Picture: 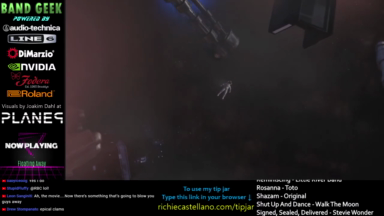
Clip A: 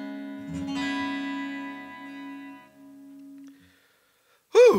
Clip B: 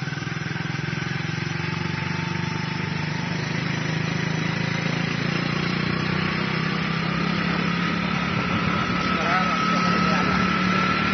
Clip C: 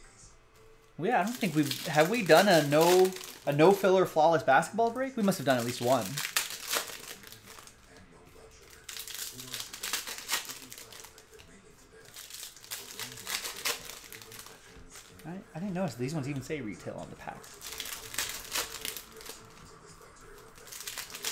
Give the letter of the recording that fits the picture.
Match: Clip A